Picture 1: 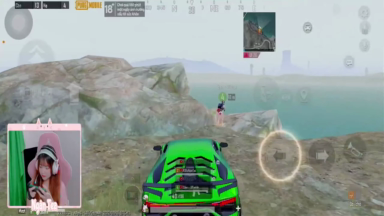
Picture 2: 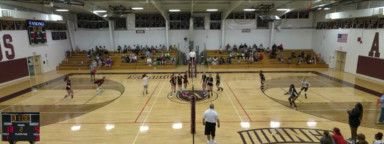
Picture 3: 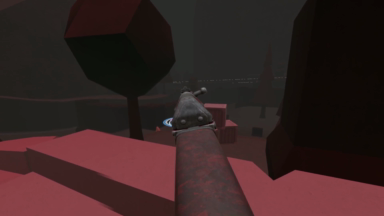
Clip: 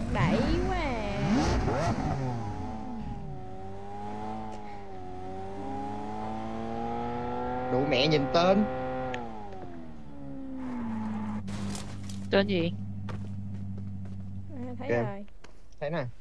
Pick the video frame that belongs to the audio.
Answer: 1